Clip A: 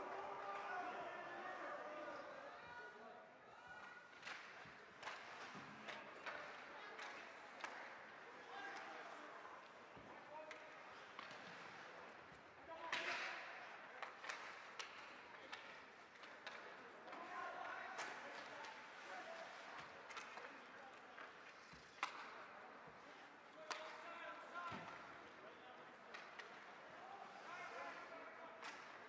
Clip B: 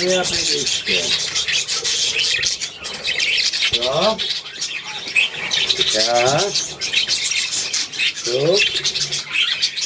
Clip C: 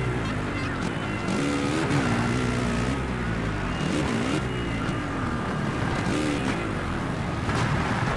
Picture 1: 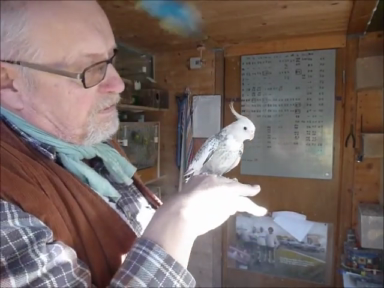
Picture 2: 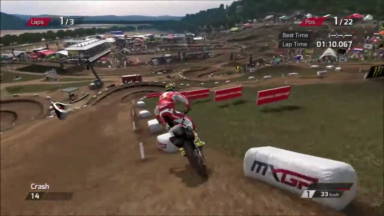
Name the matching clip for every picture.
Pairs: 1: B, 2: C